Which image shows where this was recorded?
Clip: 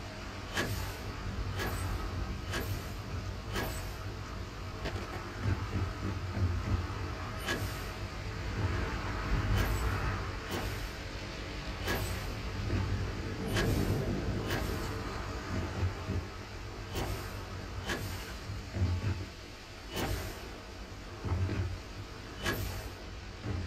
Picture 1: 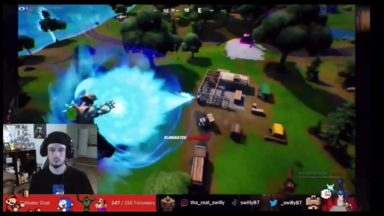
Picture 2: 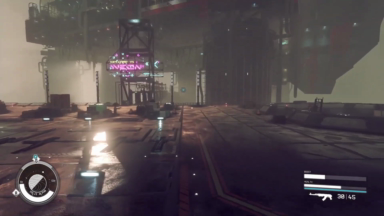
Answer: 2